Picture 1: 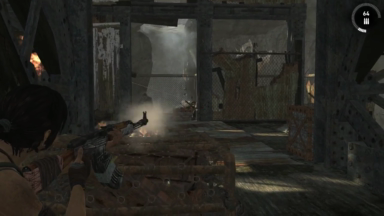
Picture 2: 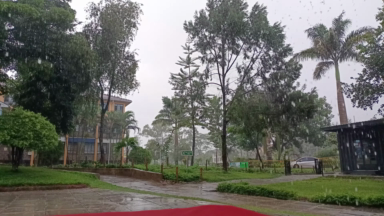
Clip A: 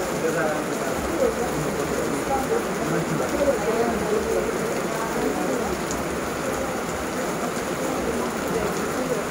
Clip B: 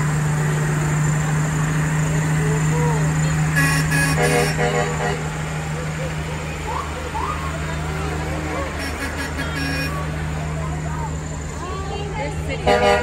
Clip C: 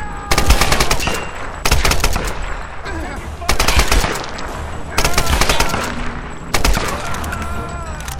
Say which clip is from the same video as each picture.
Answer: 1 C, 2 A